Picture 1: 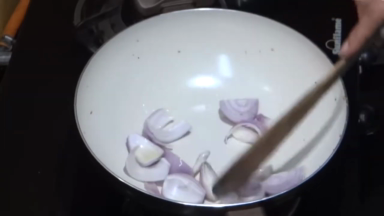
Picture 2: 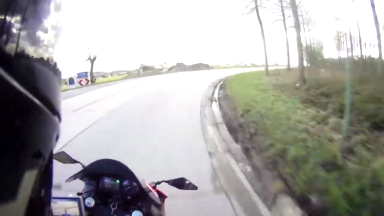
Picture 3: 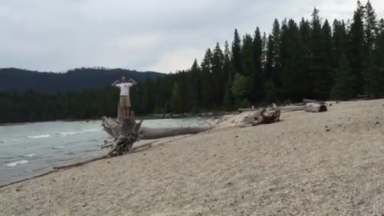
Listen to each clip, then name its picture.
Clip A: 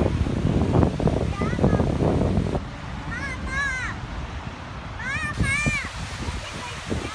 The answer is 3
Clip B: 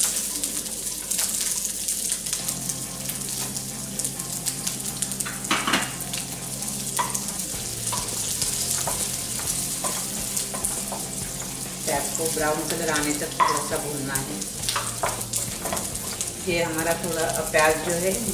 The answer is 1